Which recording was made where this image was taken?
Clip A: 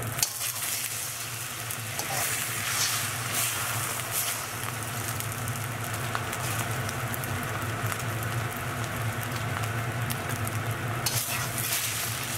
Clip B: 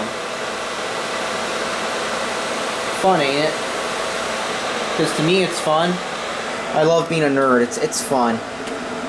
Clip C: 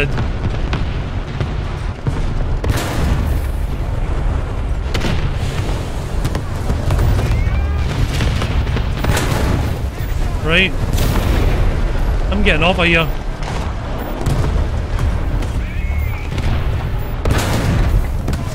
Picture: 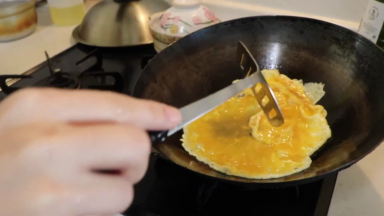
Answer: A